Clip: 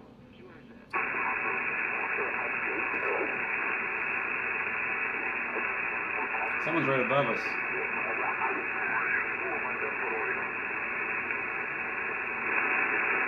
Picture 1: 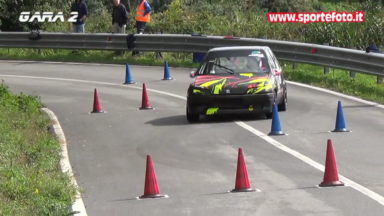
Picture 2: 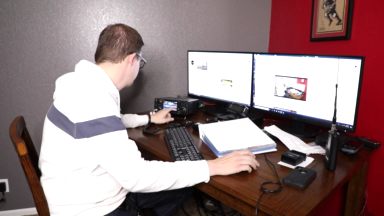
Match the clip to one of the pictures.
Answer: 2